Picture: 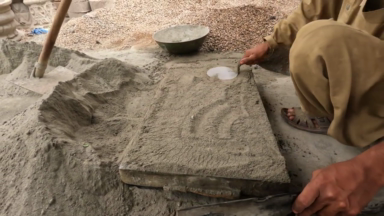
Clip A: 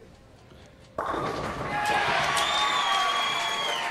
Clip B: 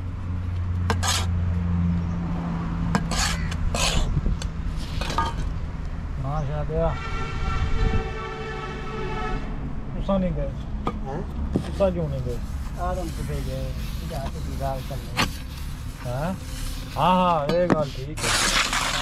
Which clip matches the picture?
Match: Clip B